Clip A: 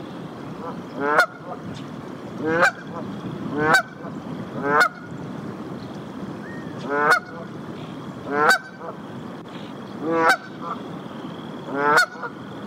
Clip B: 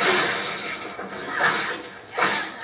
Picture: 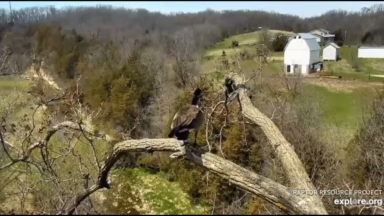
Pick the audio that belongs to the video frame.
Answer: A